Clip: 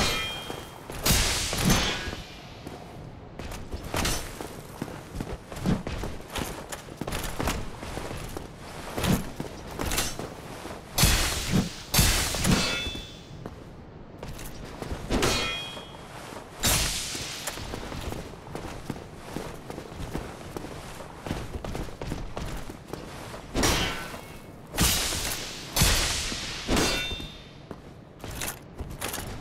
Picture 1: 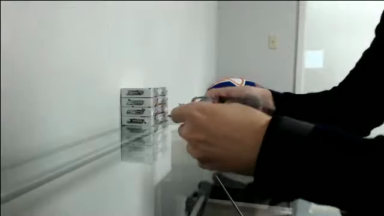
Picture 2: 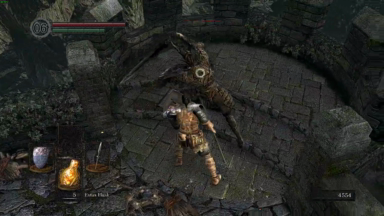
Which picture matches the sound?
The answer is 2